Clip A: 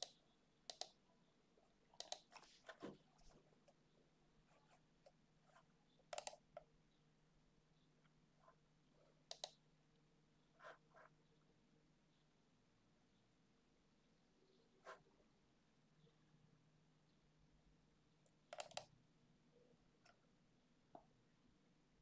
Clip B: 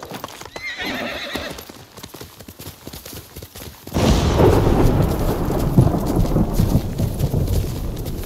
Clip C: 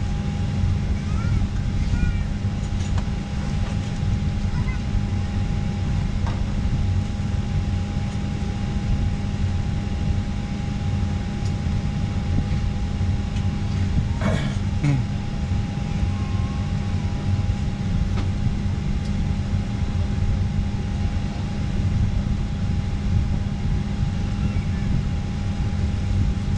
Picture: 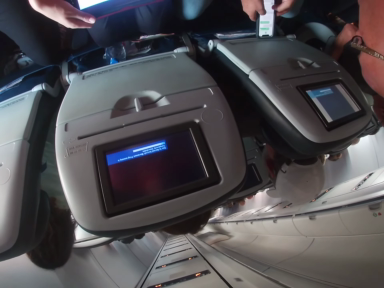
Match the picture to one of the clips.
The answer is C